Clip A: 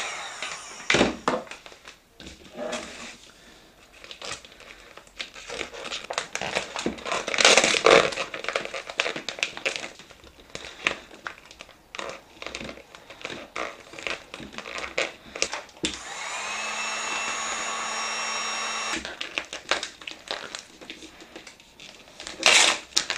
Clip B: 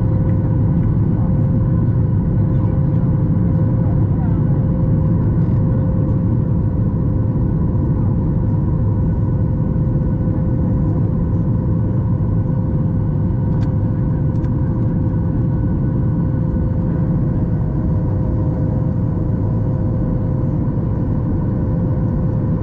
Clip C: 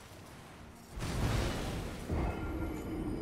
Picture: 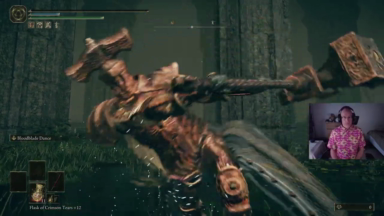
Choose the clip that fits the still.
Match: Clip C